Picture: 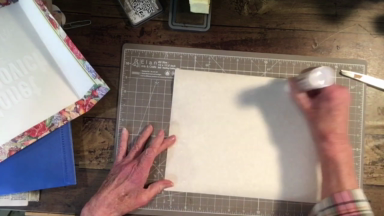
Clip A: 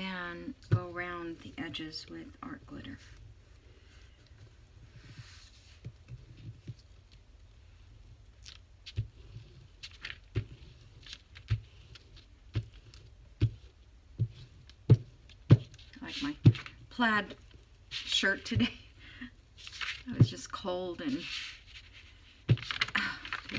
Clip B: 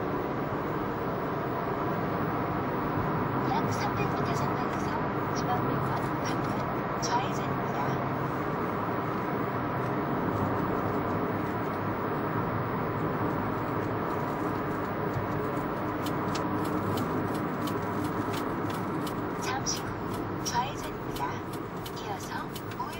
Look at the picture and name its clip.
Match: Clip A